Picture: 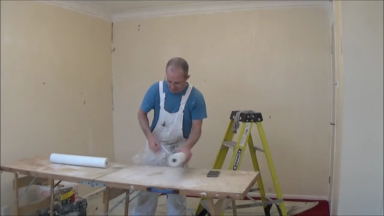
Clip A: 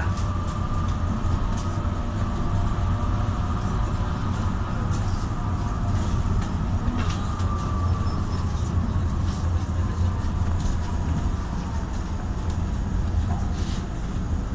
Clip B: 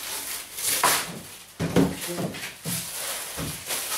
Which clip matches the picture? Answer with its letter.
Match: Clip B